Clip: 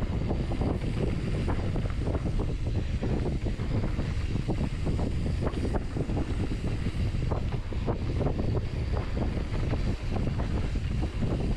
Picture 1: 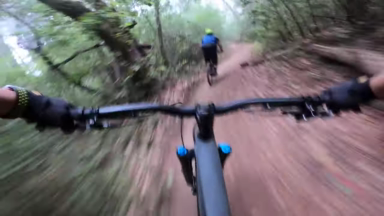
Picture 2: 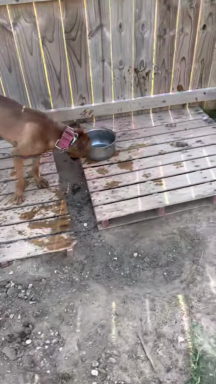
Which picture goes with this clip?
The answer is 1